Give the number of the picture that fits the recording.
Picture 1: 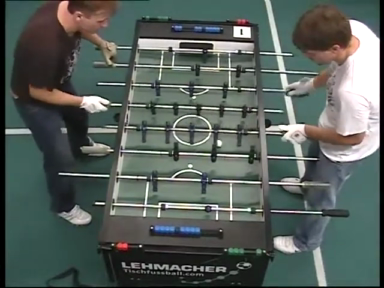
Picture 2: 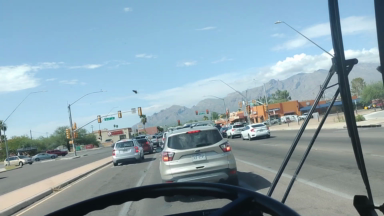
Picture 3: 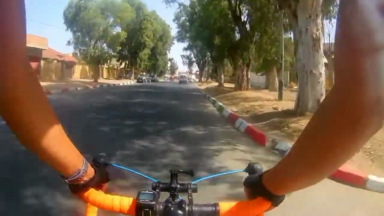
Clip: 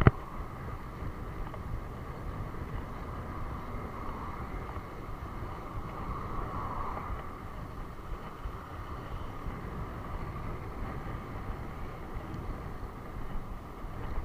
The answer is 3